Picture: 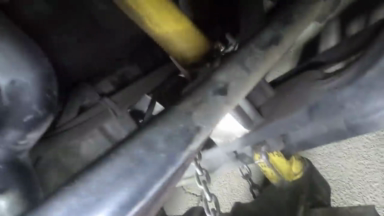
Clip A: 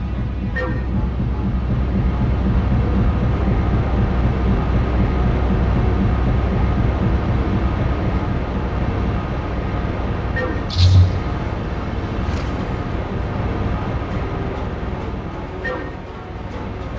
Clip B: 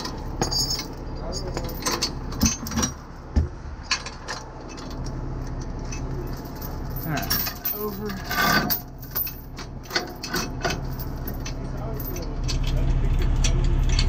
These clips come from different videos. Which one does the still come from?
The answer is B